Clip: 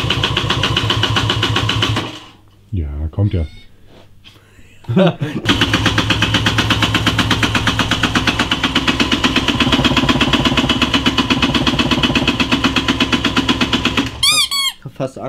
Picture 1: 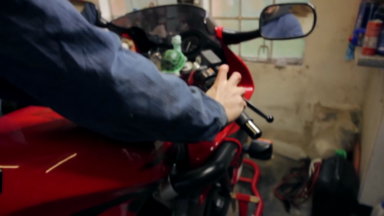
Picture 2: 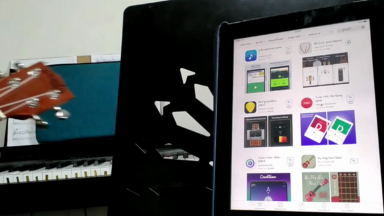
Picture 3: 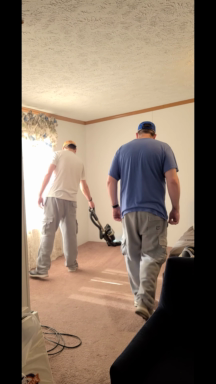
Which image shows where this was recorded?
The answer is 1